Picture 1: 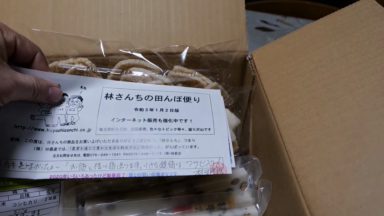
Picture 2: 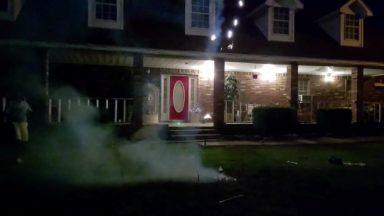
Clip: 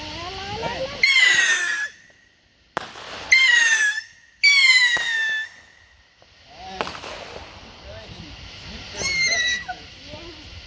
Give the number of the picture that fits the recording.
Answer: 2